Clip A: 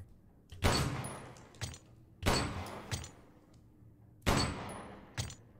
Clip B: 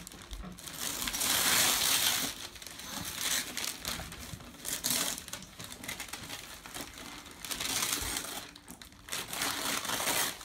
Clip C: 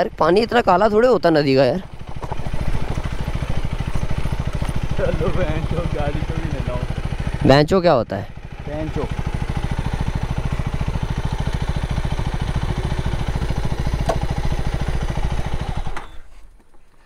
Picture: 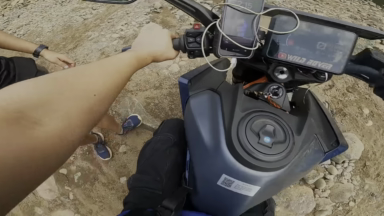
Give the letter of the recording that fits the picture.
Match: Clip C